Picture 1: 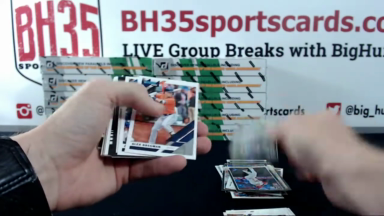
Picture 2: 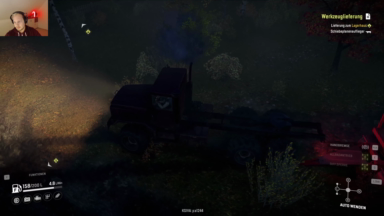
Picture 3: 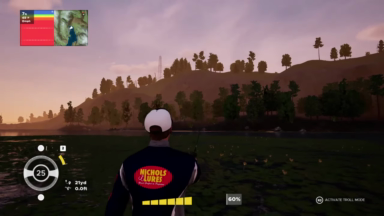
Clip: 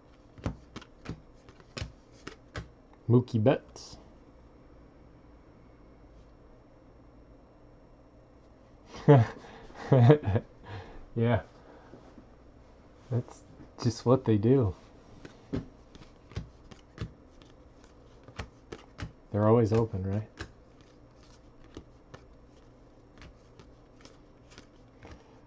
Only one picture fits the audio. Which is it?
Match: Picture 1